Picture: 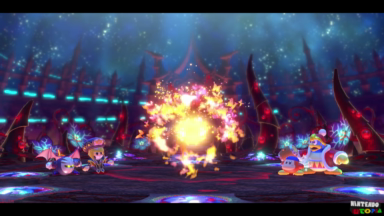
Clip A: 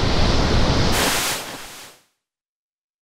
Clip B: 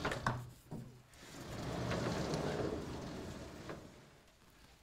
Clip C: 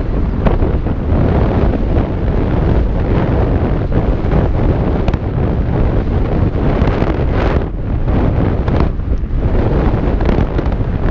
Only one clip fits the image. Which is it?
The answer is A